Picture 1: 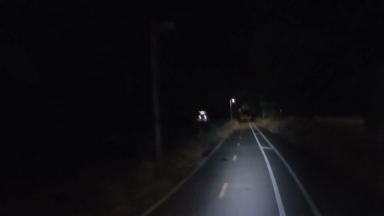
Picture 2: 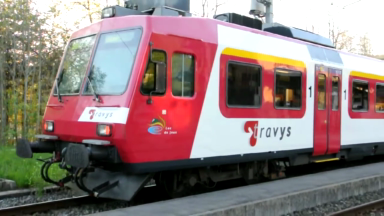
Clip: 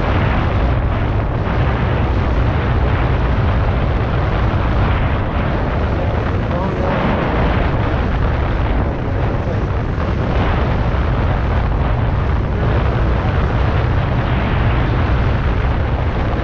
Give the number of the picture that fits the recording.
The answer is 1